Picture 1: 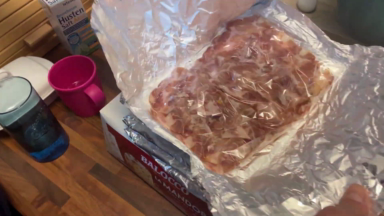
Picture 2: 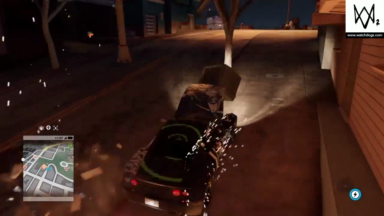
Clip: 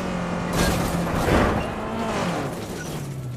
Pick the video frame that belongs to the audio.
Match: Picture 2